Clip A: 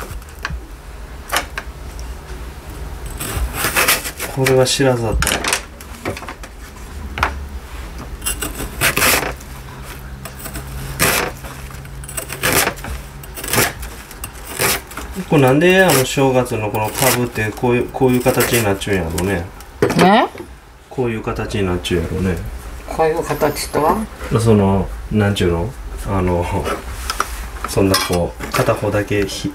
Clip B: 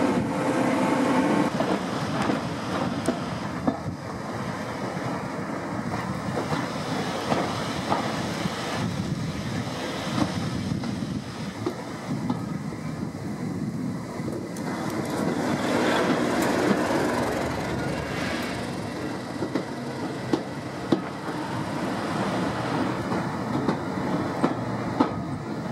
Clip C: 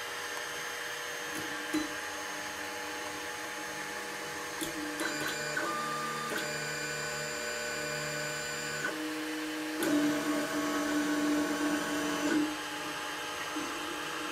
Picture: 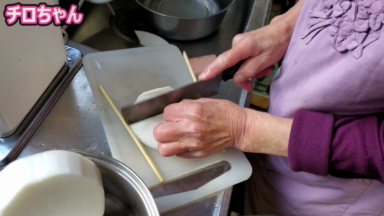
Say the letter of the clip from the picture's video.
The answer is A